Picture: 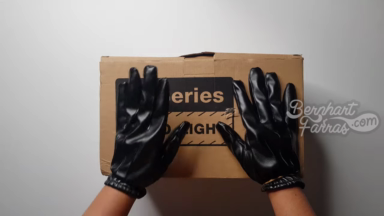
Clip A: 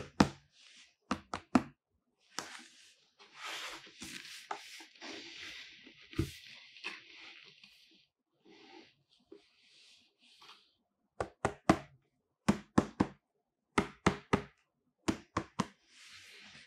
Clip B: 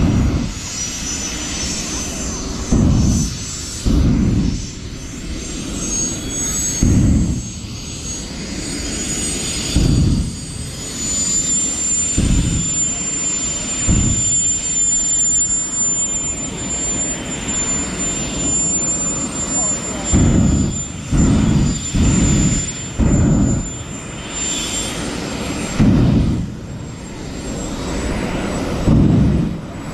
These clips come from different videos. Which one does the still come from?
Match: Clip A